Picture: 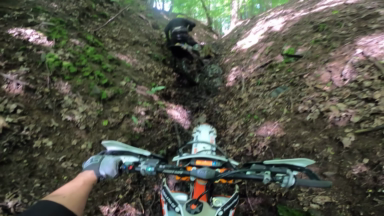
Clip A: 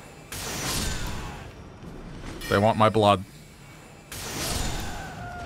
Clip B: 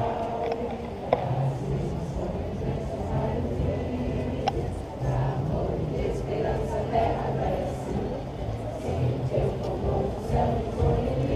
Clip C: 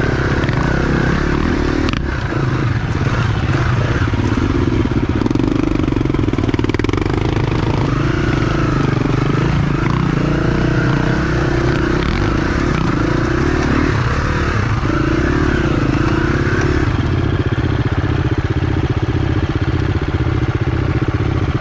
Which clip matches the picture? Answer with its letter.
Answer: C